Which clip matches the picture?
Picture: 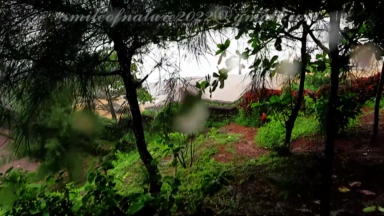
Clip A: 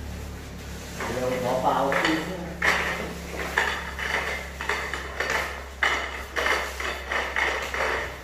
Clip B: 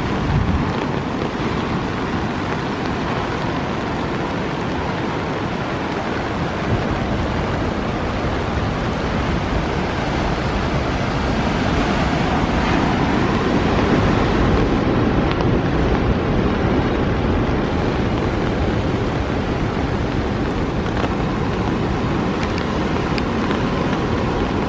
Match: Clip B